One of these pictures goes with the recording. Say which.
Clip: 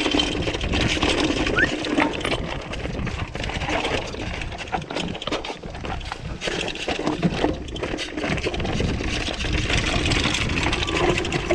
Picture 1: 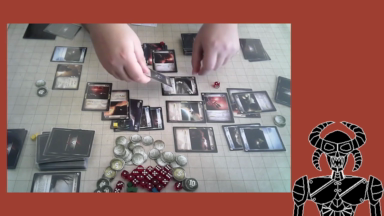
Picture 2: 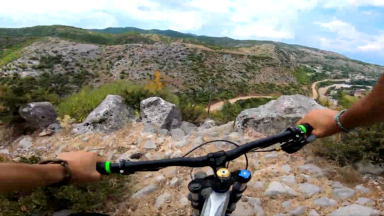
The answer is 2